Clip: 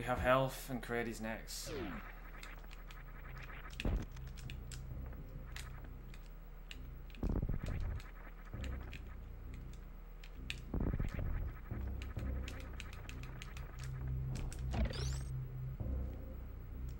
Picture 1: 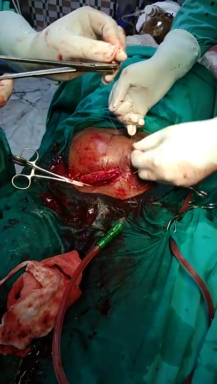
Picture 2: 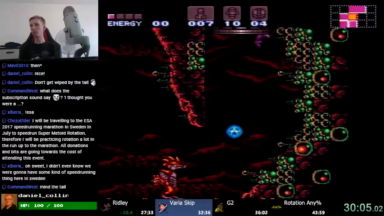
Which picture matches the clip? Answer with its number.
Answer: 2